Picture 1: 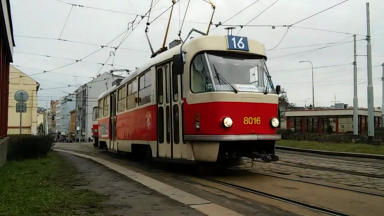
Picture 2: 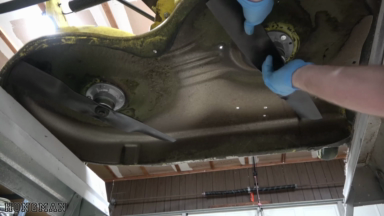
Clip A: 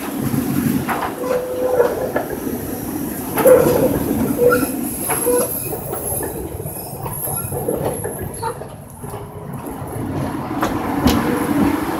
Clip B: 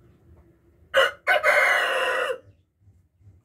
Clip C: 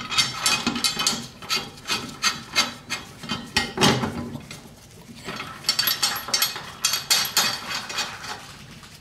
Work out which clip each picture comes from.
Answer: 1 A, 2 C